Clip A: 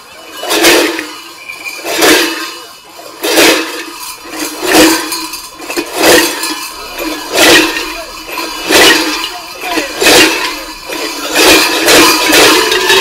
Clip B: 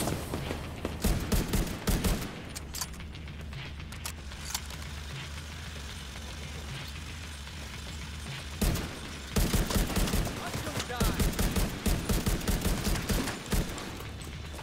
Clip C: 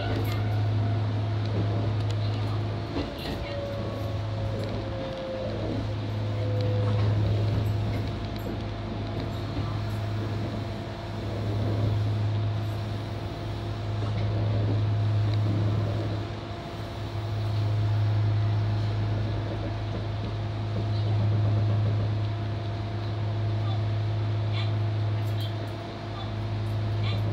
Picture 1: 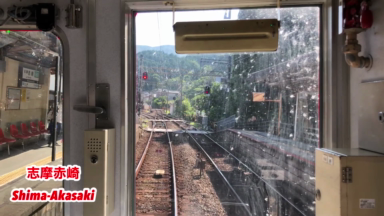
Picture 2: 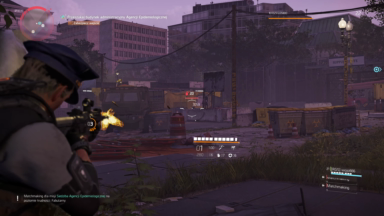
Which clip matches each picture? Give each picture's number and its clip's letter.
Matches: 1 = C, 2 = B